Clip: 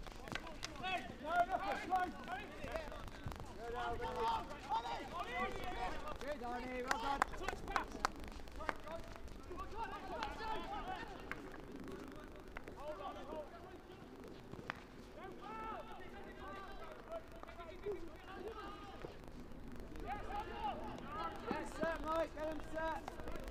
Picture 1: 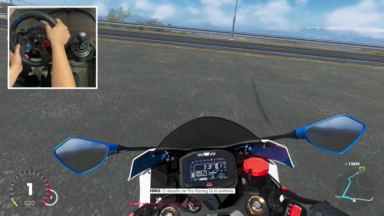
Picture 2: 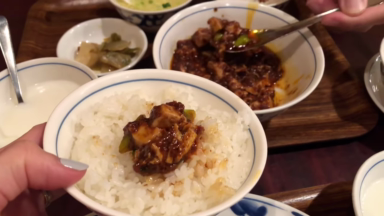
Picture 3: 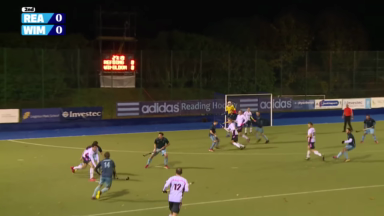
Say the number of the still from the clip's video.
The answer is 3